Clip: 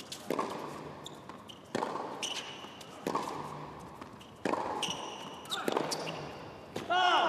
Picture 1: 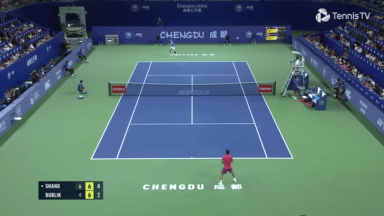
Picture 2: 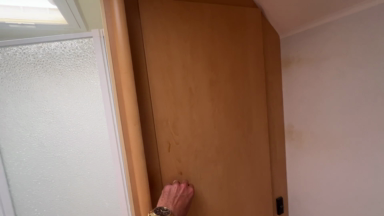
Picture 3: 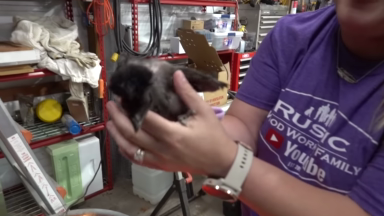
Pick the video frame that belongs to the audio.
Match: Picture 1